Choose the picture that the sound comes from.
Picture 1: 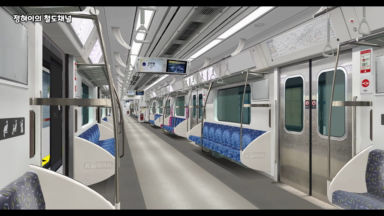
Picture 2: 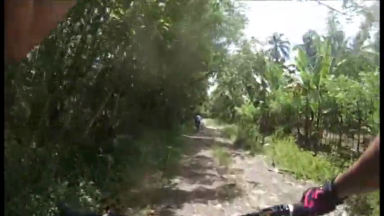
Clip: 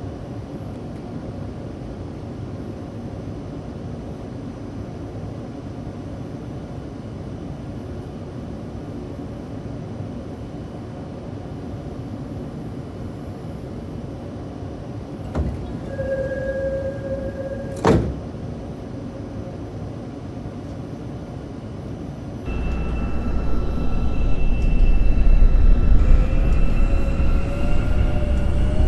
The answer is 1